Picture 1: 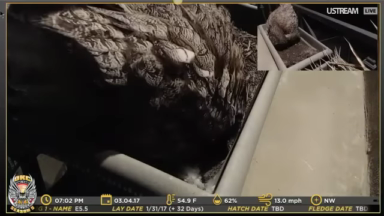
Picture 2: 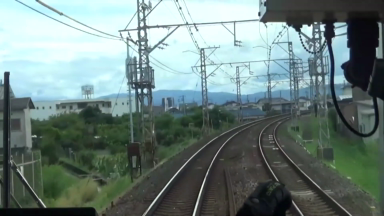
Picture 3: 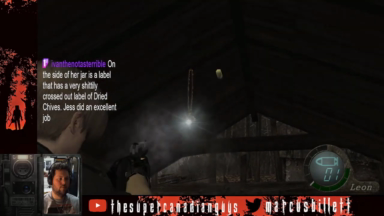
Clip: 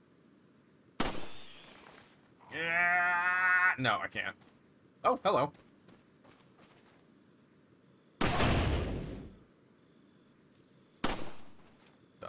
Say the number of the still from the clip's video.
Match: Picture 3